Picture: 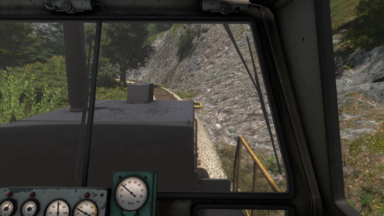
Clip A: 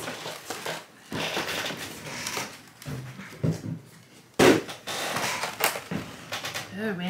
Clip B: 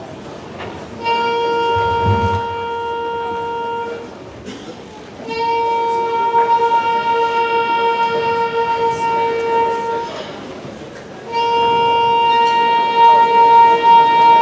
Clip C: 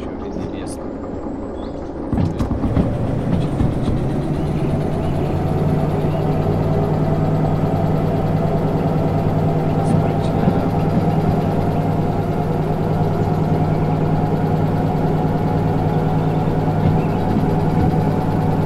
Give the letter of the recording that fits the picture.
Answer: C